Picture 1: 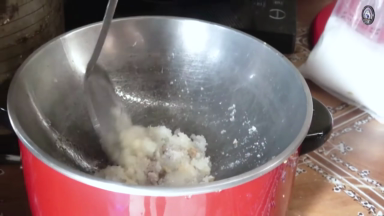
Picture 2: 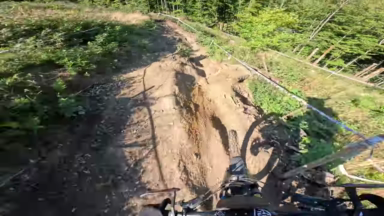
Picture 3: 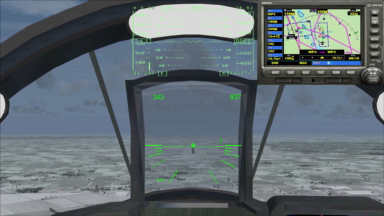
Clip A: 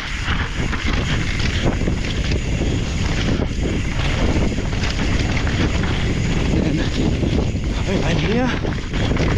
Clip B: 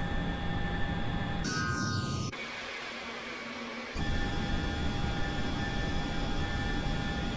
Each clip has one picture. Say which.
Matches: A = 2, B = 3